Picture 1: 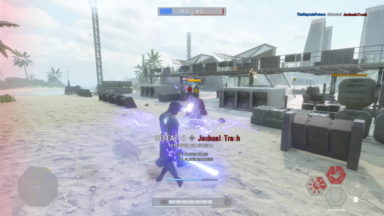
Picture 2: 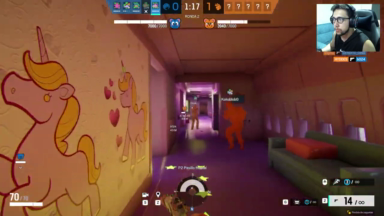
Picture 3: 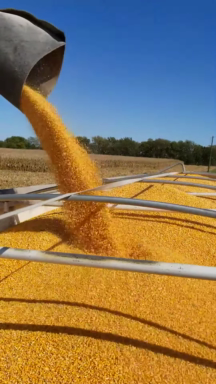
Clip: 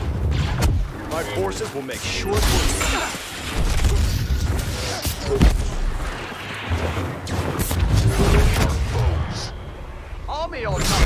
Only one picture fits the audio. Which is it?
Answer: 1